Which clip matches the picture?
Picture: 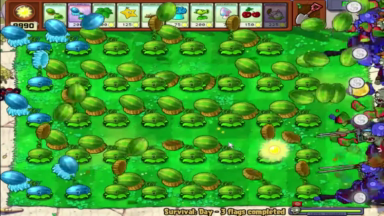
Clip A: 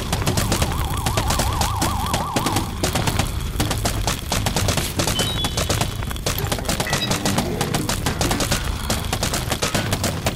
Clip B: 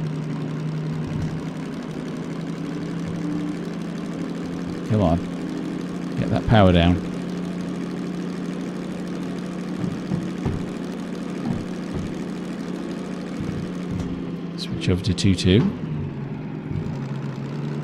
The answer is A